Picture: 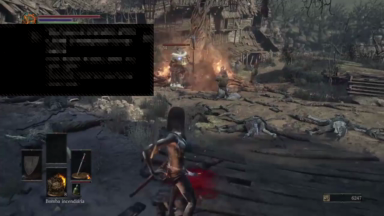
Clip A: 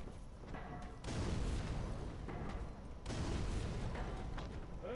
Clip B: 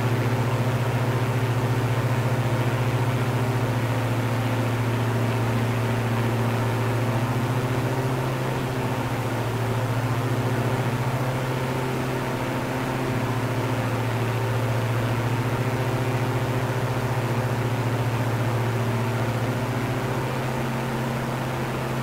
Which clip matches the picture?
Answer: A